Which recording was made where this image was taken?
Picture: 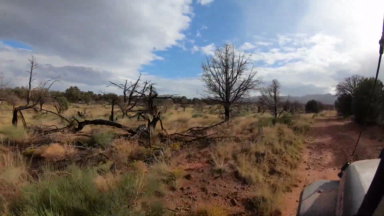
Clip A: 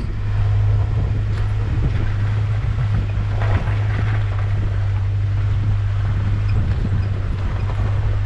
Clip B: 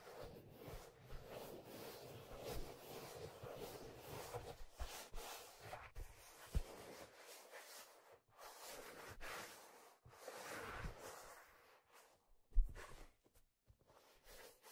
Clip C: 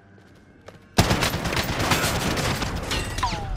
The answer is A